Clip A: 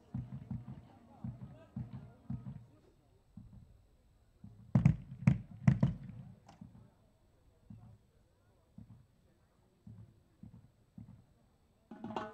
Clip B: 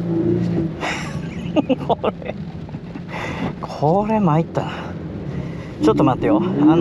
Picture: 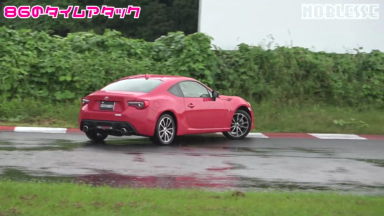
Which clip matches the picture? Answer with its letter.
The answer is B